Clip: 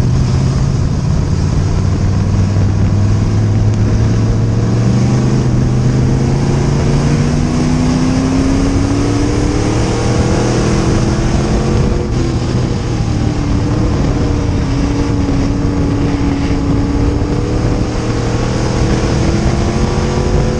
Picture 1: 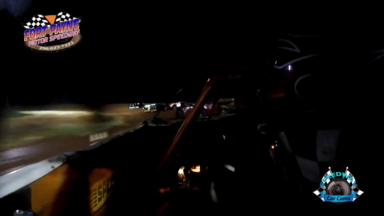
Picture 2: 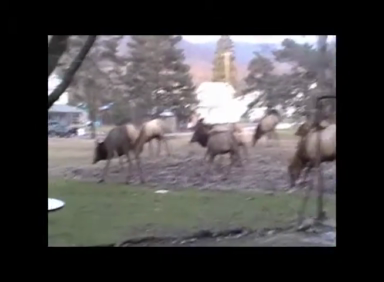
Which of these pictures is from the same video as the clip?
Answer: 1